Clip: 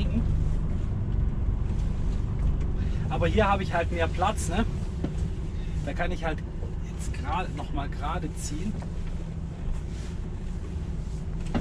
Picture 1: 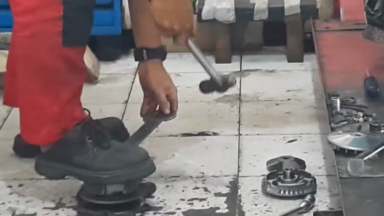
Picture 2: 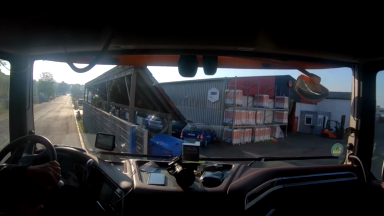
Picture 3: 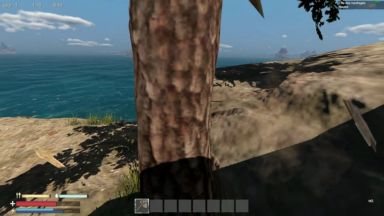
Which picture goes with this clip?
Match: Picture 2